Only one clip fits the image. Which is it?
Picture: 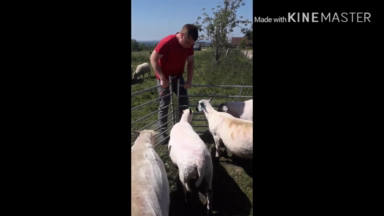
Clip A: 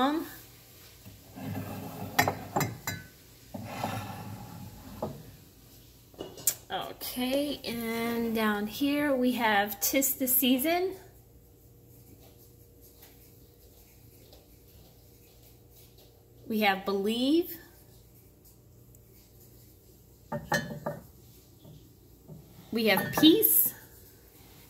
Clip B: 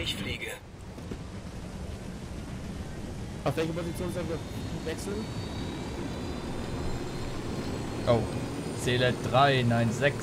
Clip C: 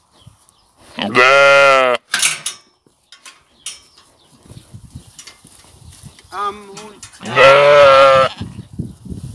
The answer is C